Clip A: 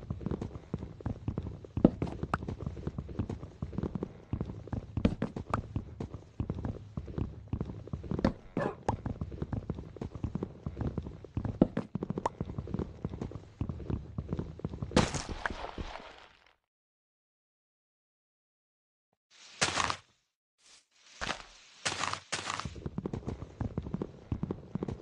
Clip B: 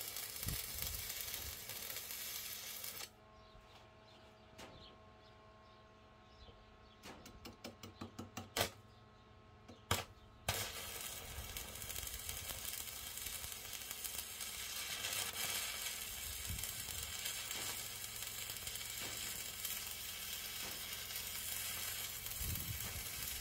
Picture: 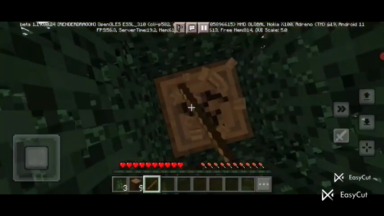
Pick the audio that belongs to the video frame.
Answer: A